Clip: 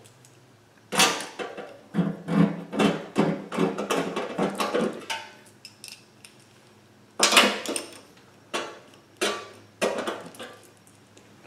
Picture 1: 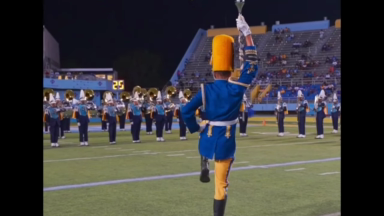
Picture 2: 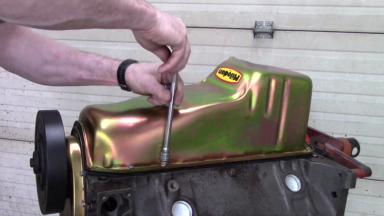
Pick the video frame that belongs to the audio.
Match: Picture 2